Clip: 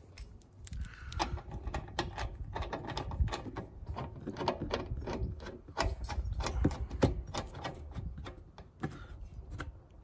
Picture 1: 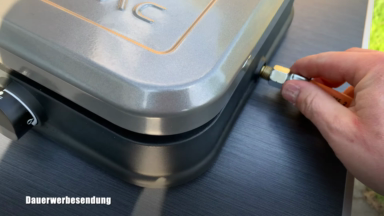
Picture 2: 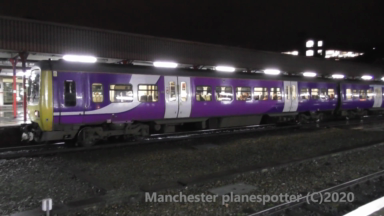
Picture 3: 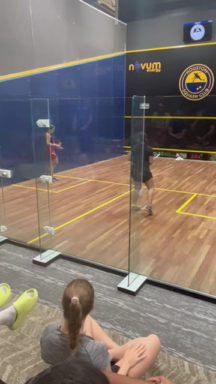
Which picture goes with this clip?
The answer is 1